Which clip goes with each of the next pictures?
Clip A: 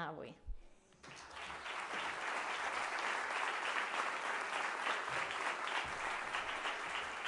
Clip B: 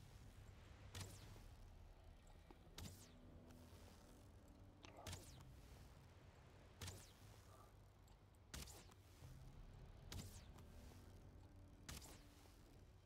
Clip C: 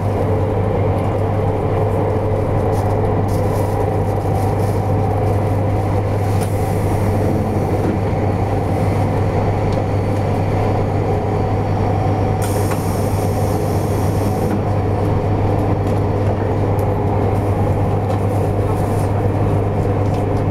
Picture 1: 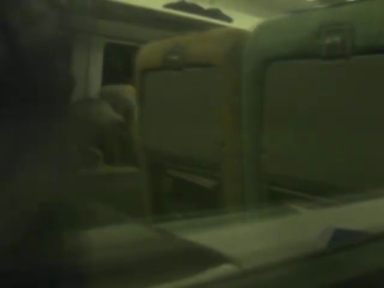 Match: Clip C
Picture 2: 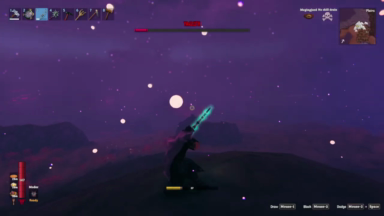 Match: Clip B